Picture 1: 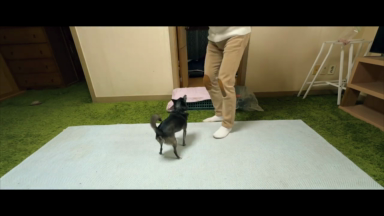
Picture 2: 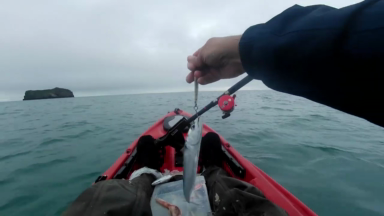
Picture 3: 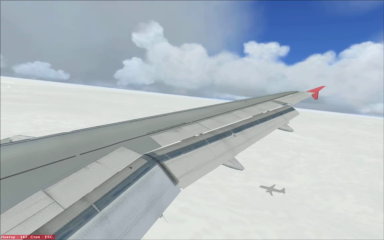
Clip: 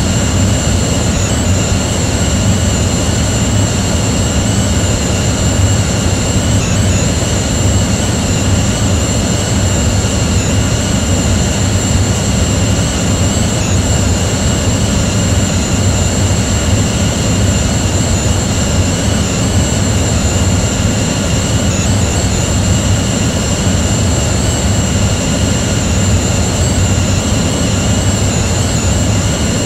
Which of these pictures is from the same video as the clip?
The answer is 3